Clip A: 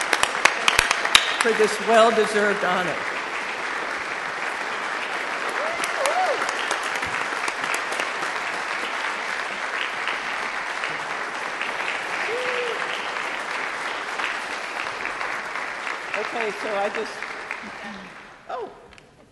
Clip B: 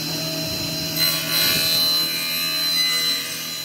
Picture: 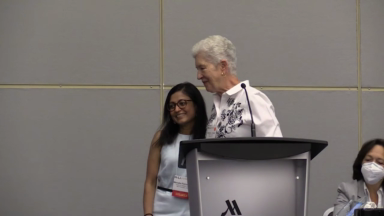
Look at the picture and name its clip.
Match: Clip A